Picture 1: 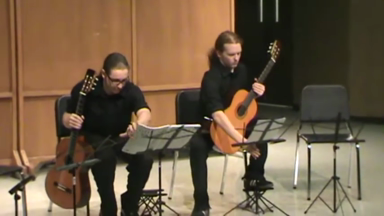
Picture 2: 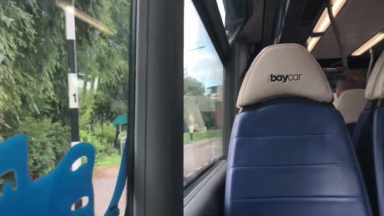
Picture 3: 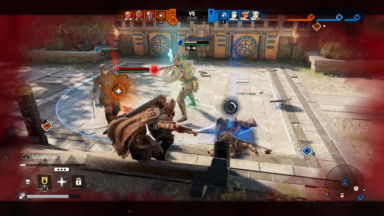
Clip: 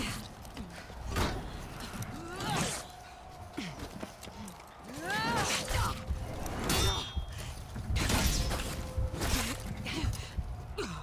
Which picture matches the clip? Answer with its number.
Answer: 3